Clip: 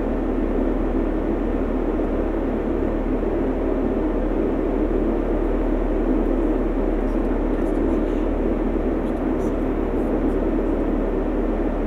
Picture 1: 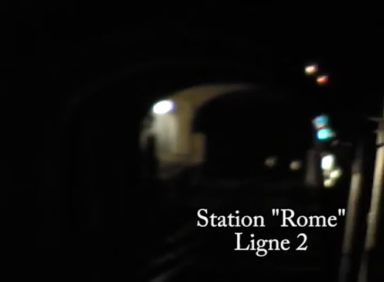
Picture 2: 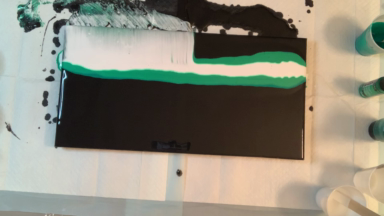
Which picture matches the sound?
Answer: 1